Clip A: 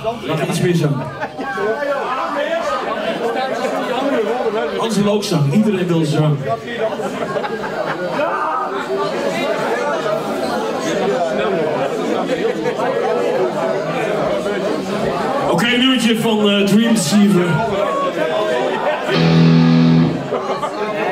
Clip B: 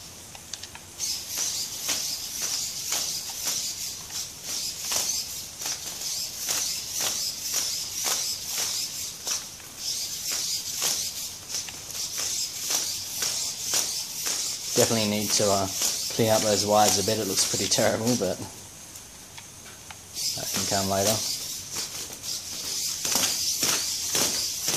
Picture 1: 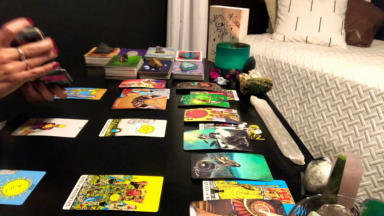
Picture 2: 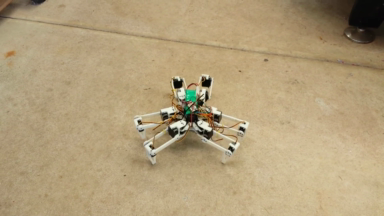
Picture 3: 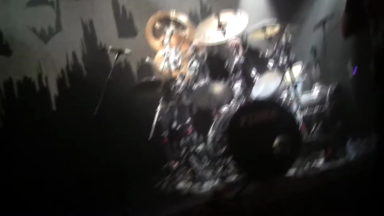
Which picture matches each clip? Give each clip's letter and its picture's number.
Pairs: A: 3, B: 2